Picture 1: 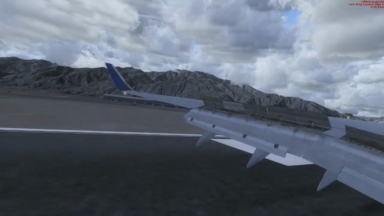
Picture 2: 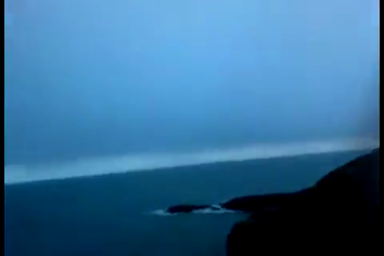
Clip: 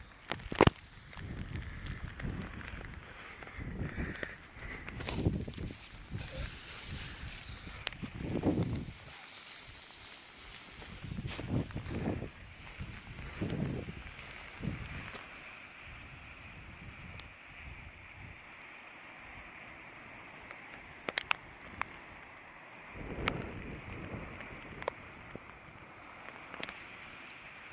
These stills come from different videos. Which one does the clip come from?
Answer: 2